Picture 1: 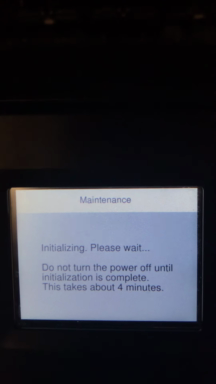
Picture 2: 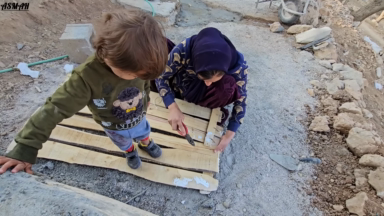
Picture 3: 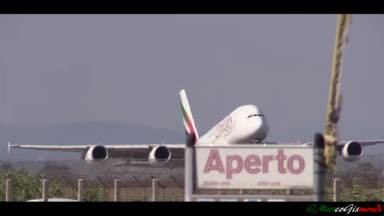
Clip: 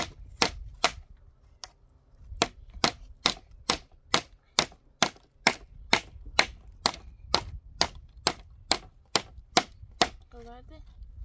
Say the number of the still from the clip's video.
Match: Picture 2